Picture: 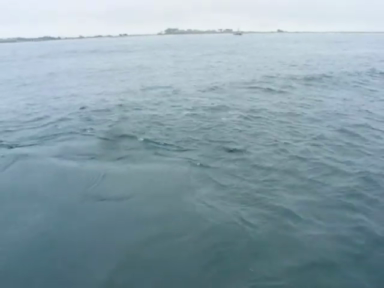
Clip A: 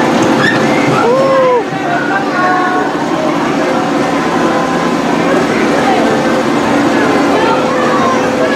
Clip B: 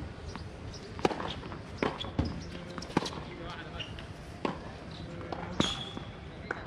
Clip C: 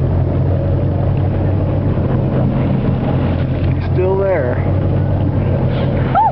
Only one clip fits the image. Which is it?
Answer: C